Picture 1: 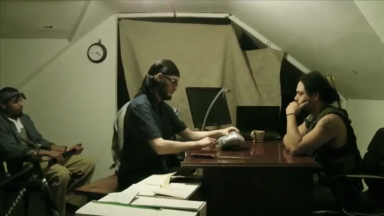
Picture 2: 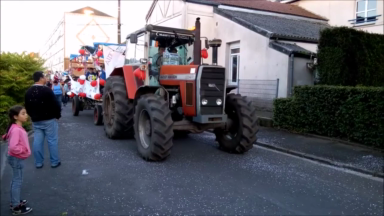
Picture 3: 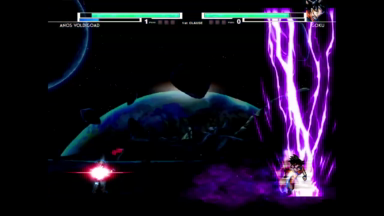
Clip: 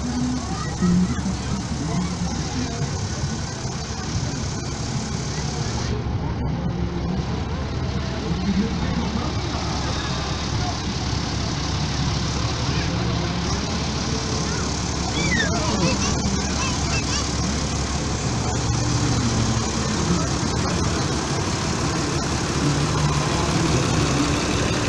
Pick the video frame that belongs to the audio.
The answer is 2